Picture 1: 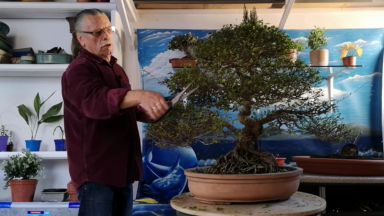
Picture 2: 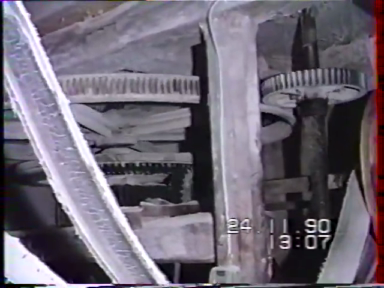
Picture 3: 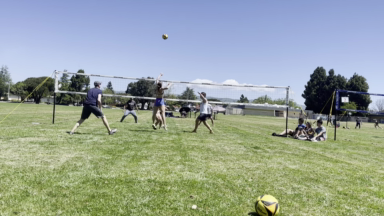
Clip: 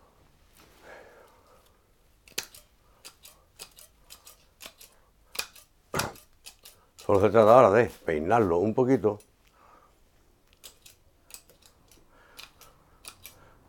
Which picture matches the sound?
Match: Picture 1